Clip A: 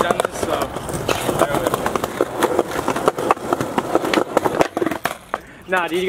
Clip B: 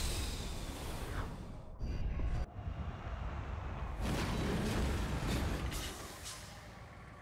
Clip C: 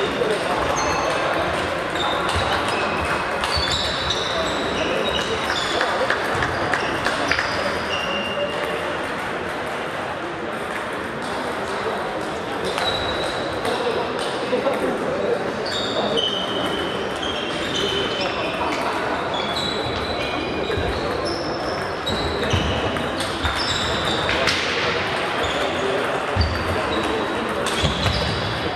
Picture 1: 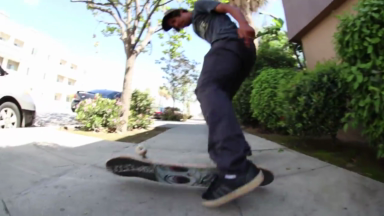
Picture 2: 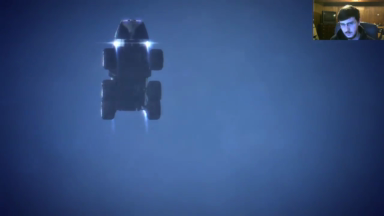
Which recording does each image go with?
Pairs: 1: A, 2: B